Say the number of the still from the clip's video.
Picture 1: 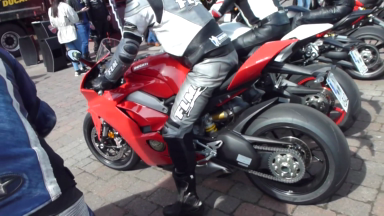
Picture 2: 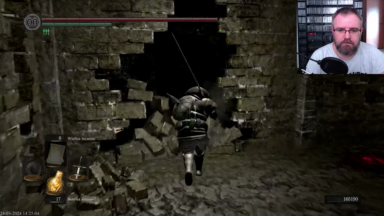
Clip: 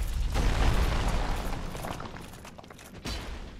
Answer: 2